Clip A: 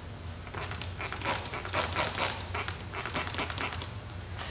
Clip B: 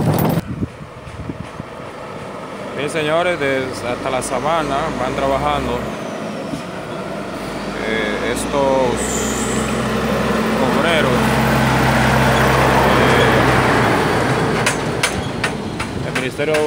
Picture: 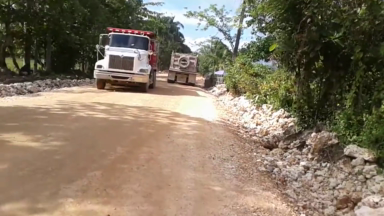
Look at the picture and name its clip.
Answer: B